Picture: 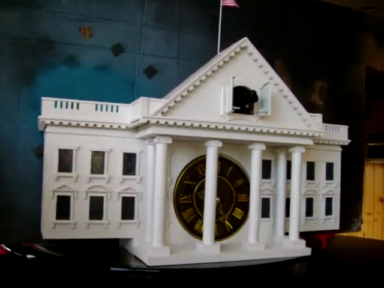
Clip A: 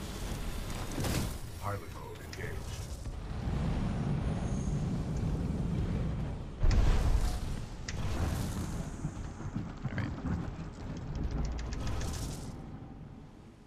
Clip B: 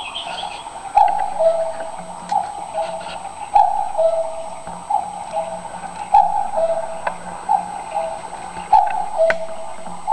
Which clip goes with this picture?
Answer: B